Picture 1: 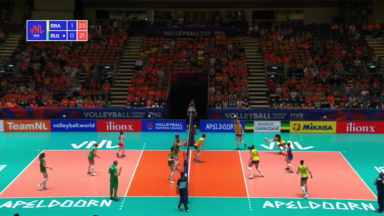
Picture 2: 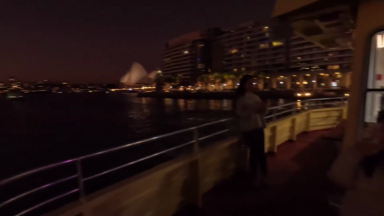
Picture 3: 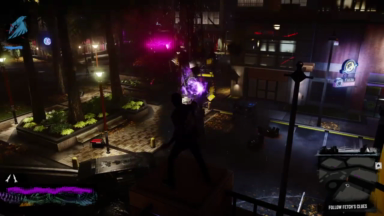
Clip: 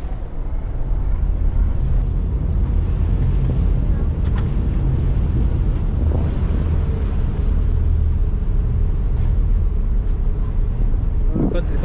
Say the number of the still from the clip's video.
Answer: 2